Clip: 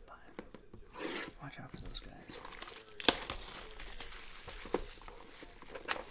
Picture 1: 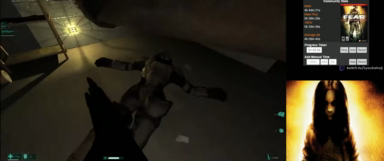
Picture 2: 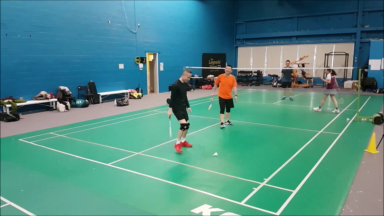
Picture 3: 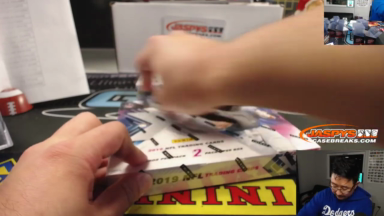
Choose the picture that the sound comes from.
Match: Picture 3